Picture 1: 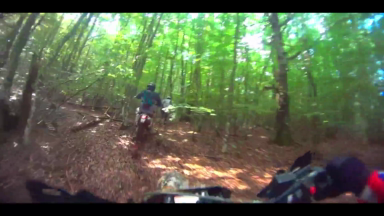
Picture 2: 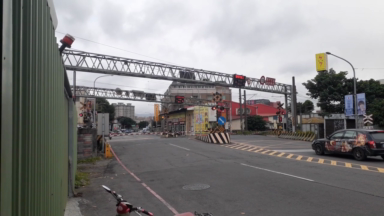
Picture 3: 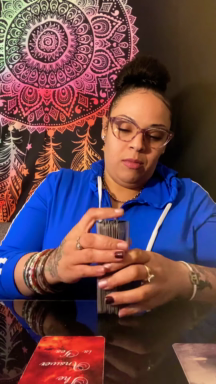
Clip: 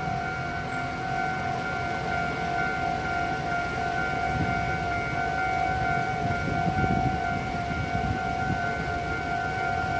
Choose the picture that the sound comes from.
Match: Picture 2